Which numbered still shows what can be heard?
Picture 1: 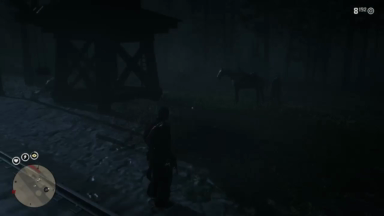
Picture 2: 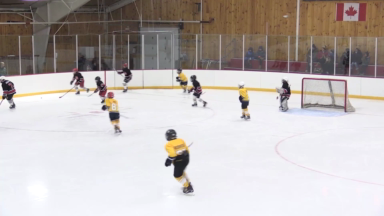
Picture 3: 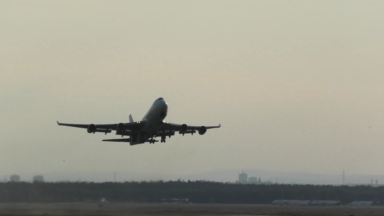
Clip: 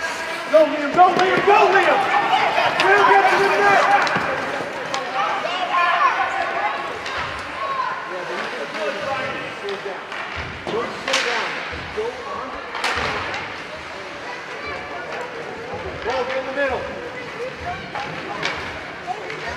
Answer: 2